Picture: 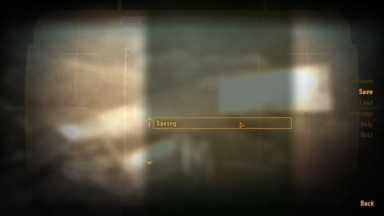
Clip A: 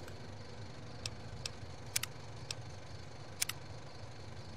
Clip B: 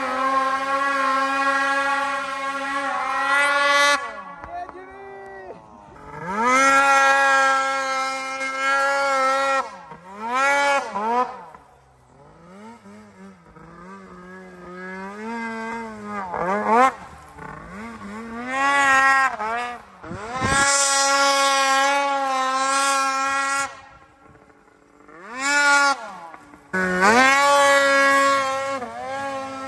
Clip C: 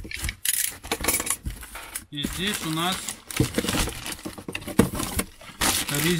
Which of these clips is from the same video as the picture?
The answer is A